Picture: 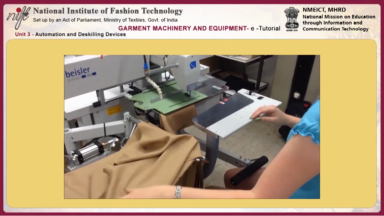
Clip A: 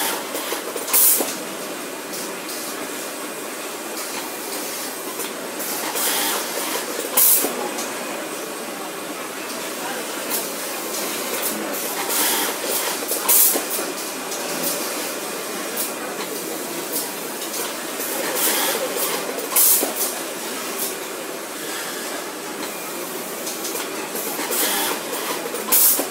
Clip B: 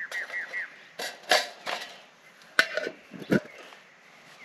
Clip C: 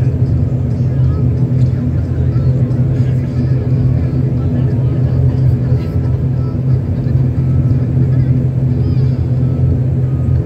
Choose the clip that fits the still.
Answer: A